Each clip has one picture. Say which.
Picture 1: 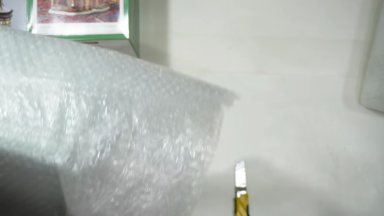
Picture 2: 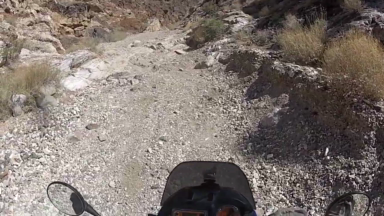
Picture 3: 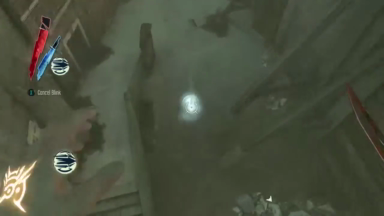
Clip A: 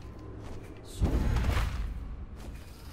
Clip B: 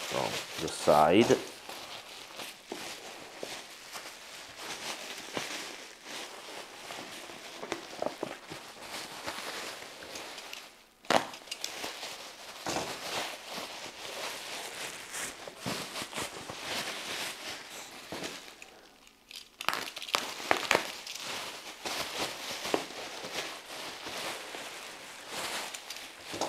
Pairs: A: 3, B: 1